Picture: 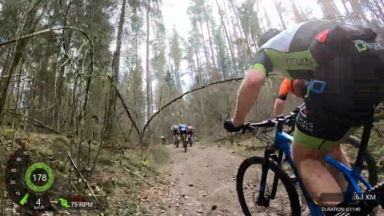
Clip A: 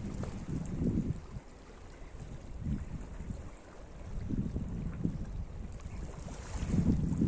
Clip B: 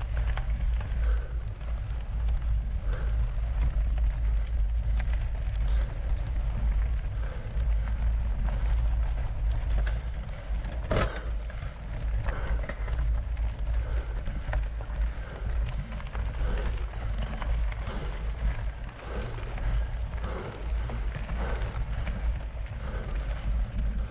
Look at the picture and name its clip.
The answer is B